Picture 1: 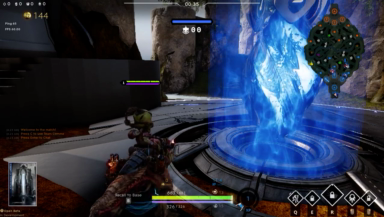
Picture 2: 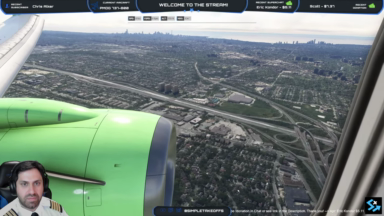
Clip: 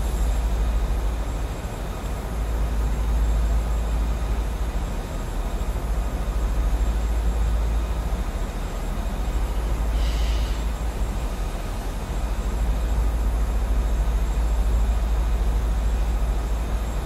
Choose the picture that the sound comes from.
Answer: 2